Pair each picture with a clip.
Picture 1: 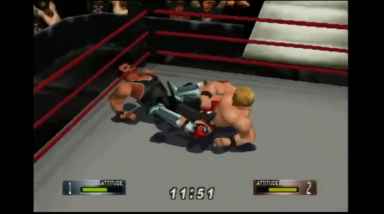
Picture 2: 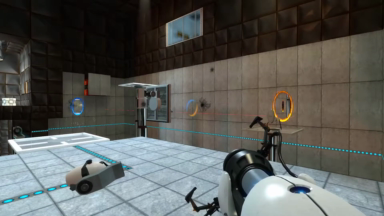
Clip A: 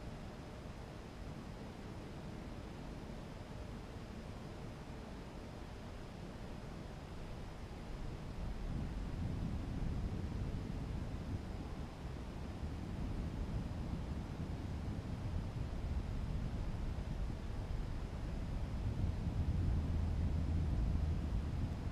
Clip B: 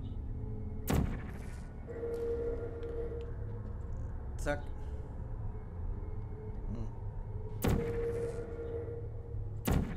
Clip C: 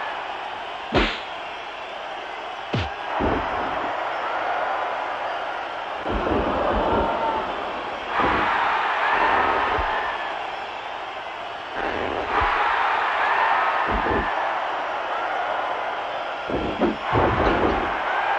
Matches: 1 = C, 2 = B